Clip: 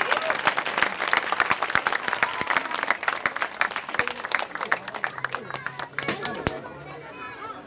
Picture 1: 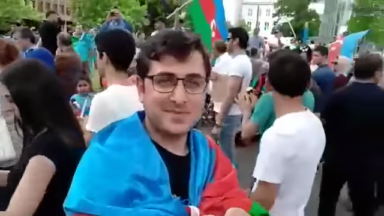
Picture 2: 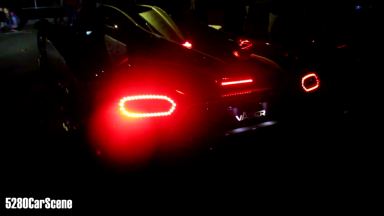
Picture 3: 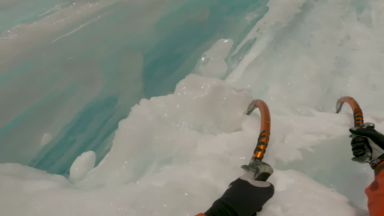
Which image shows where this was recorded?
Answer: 1